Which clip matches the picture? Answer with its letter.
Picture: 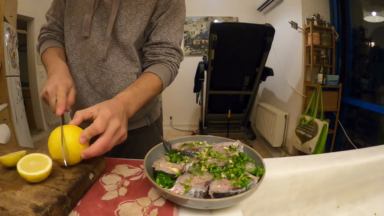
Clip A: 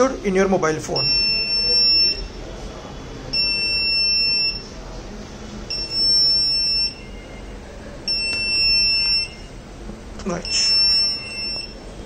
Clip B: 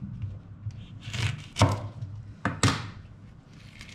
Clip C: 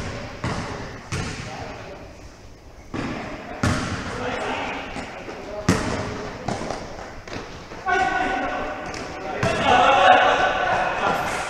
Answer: B